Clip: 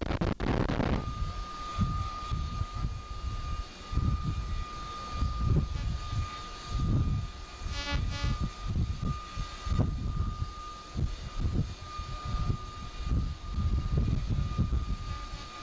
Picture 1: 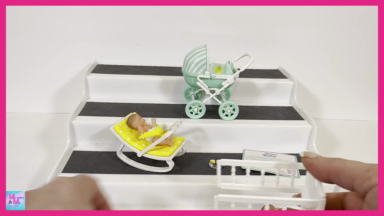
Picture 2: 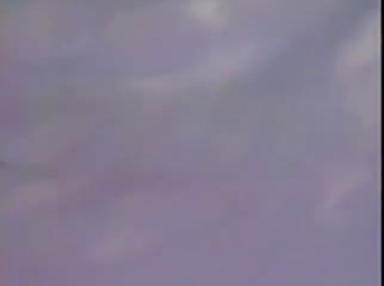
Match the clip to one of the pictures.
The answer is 2